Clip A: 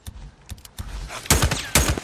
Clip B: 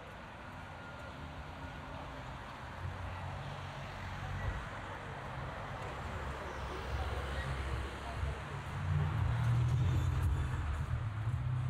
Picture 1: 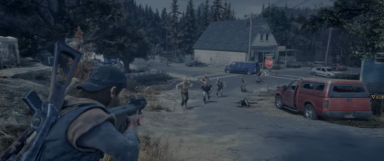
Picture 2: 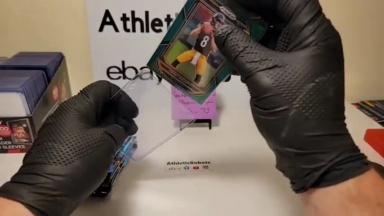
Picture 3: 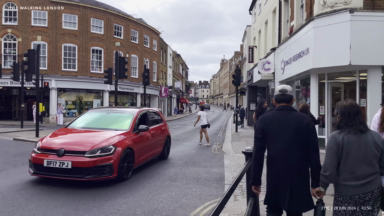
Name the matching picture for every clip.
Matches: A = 1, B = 3